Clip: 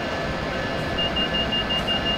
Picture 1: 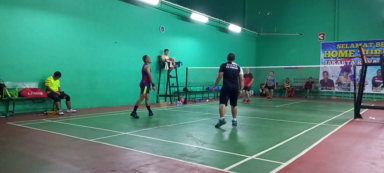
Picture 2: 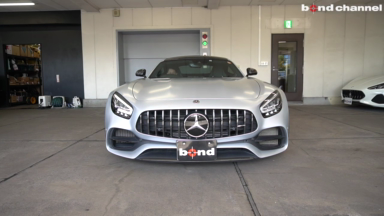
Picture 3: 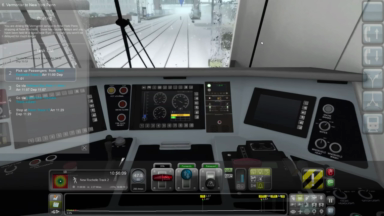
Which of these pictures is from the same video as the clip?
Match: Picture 3